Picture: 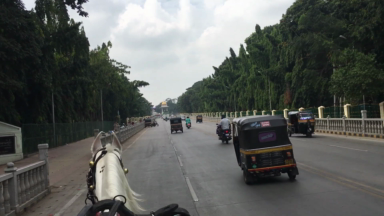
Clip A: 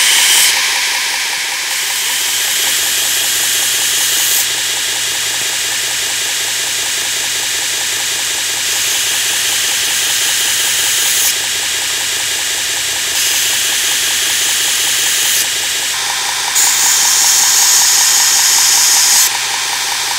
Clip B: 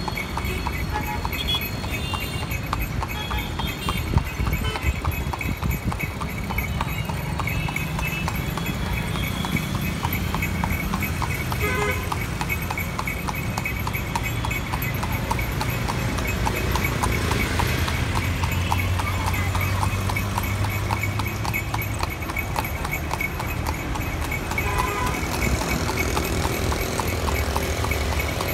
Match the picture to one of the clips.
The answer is B